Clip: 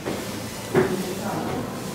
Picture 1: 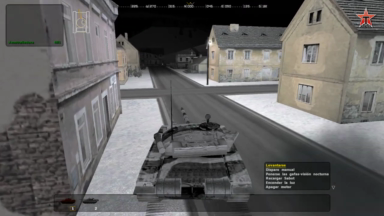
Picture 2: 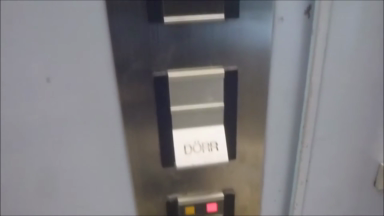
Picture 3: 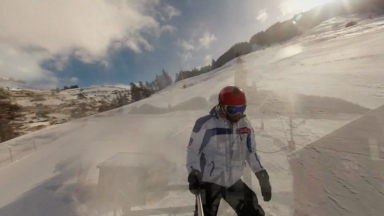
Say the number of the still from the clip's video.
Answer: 2